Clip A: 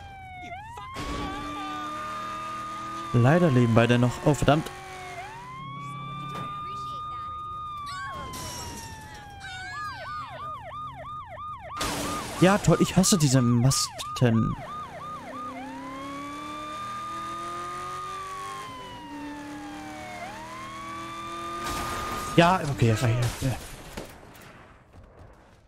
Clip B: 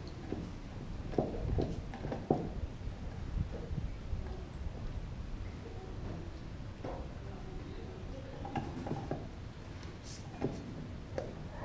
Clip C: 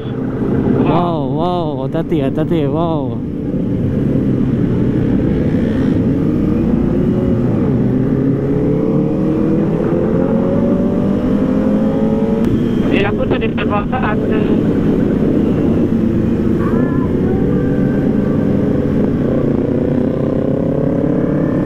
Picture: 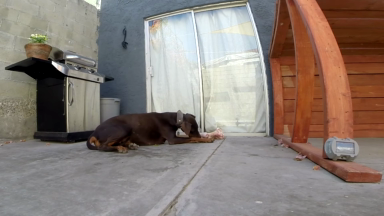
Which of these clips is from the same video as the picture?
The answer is B